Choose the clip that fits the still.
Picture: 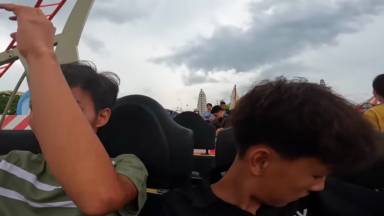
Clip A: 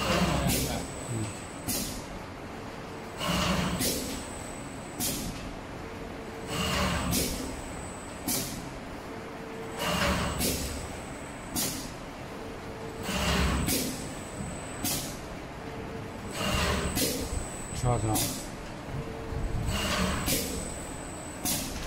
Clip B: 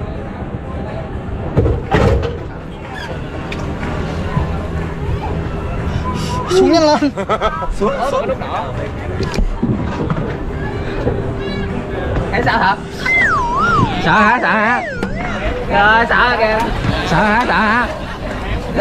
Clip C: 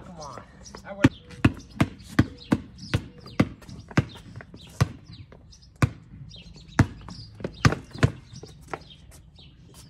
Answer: B